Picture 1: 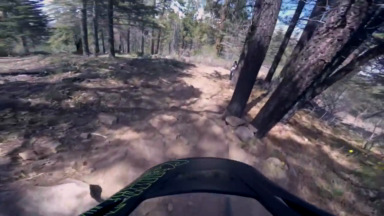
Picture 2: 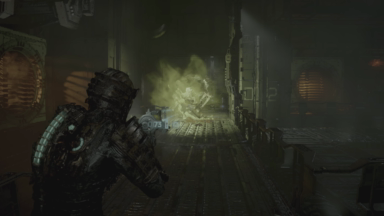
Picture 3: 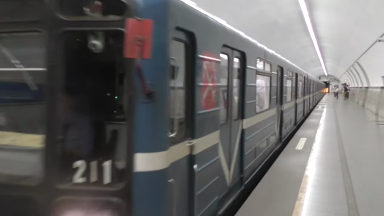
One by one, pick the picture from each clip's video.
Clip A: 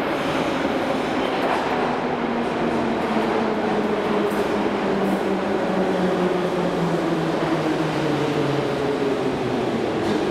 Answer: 3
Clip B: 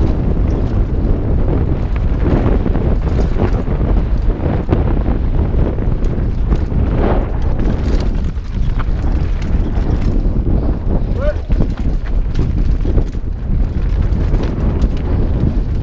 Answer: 1